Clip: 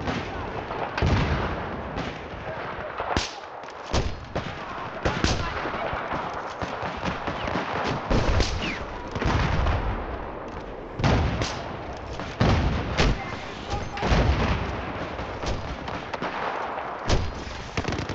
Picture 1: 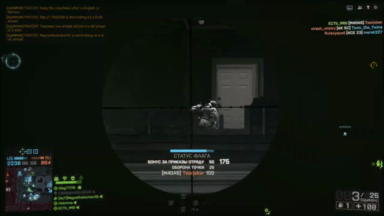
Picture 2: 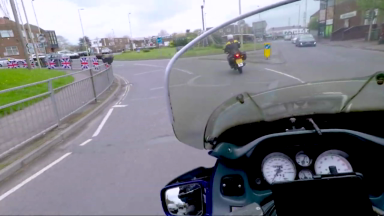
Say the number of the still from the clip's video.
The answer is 1